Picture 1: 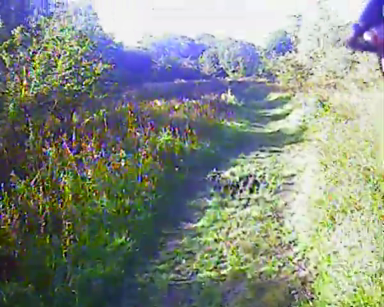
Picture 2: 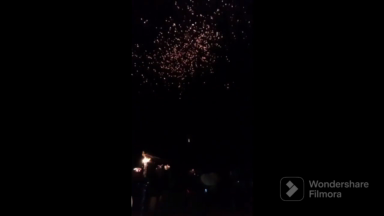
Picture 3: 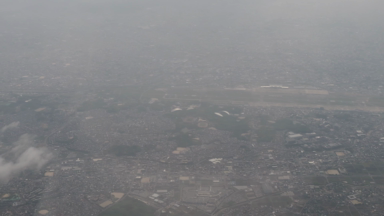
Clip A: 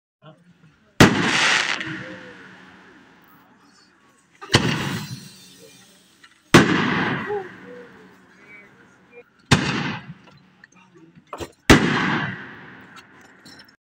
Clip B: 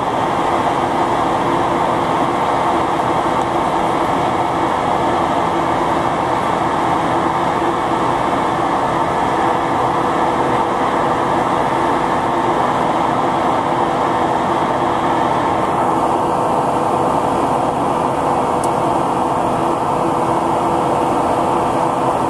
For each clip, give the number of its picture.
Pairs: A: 2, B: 3